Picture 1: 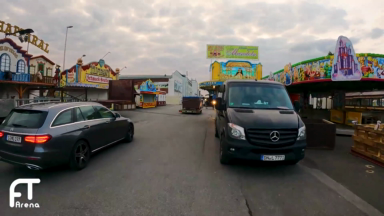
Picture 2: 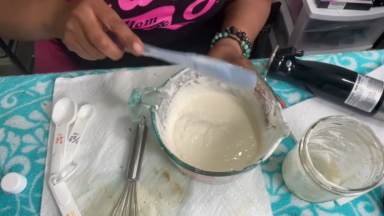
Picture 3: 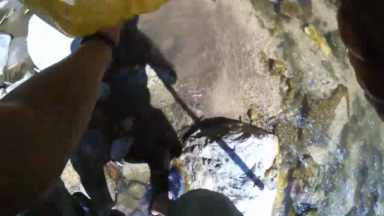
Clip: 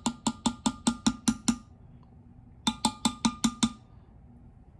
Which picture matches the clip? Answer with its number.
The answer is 2